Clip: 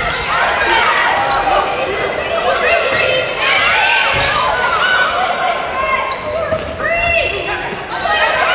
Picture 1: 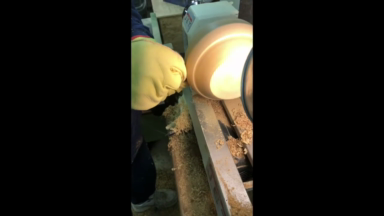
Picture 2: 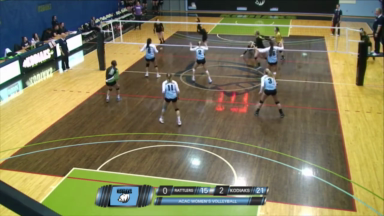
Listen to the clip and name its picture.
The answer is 2